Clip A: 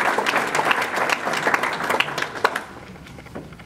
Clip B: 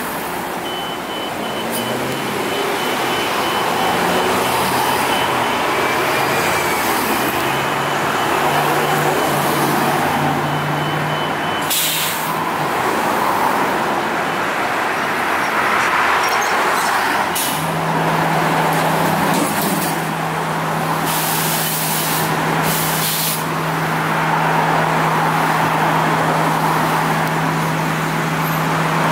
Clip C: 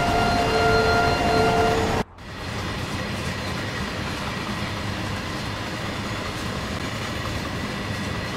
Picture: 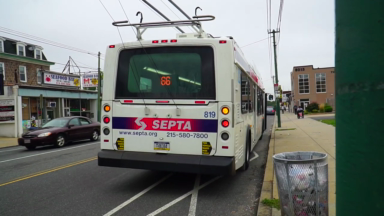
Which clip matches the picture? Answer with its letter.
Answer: B